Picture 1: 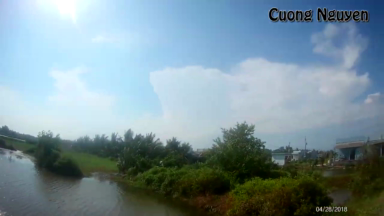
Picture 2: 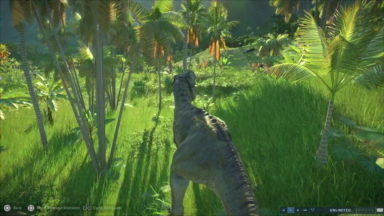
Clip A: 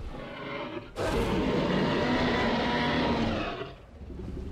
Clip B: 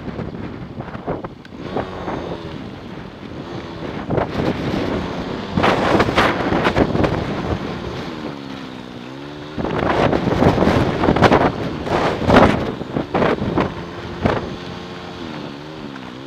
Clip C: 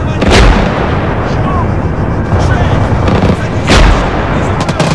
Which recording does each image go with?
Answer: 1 B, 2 A